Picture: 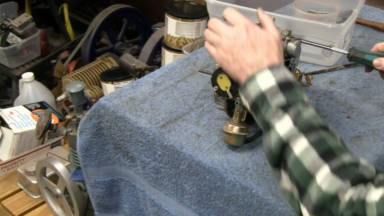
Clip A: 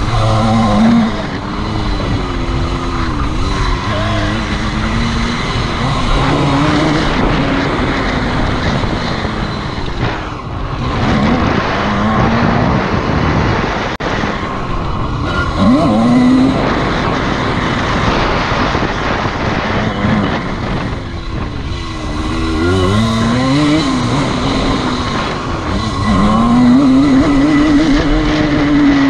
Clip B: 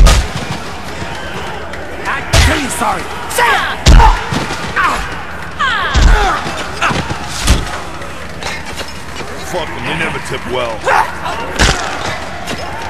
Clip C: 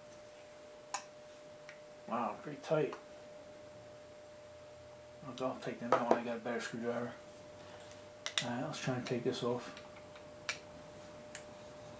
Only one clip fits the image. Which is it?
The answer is C